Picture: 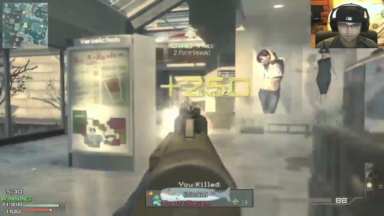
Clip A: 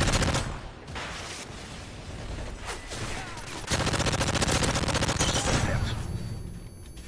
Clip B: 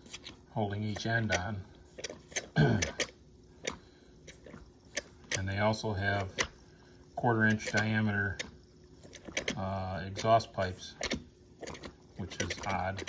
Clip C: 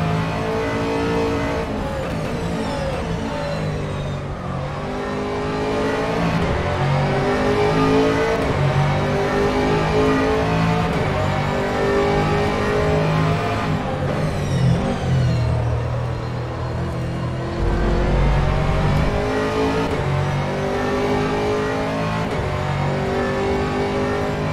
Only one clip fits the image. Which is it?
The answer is A